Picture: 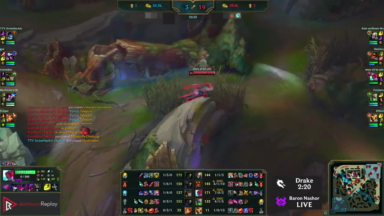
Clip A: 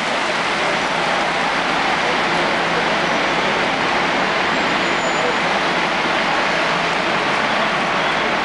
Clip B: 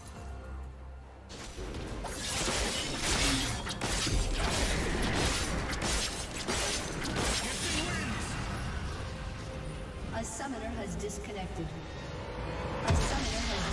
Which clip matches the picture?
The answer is B